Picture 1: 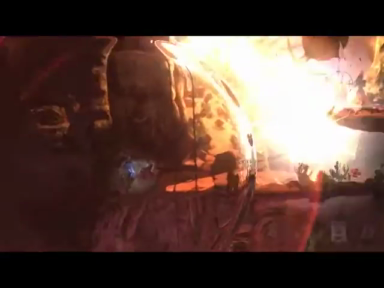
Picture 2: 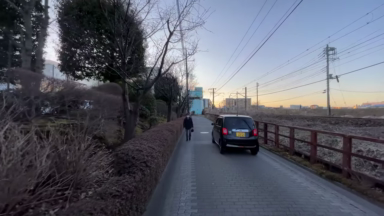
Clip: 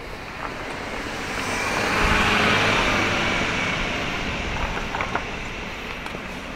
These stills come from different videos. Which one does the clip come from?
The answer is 2